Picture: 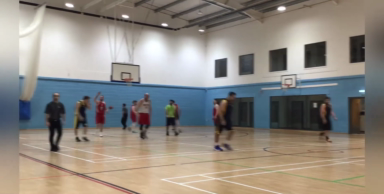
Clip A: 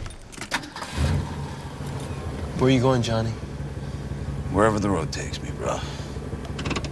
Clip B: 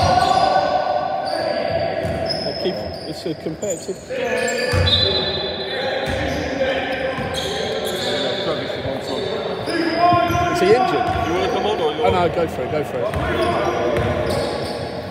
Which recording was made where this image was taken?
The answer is B